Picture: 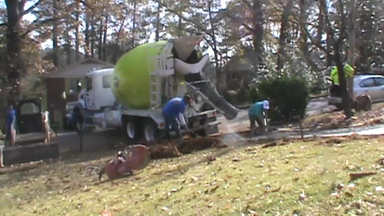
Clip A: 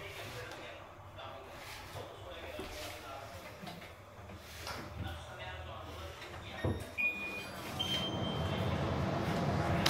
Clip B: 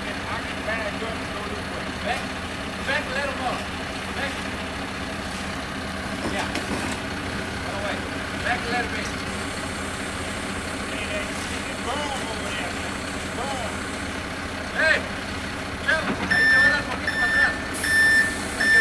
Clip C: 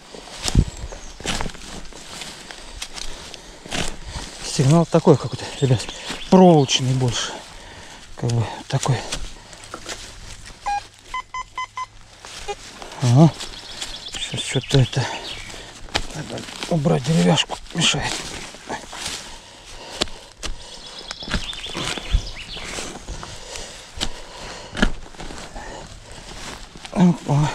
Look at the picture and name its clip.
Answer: B